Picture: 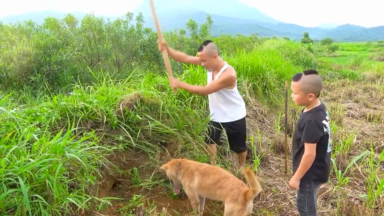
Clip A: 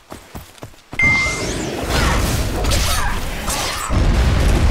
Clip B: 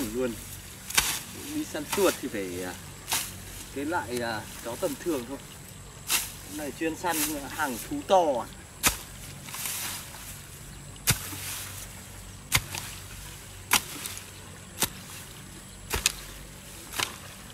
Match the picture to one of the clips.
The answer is B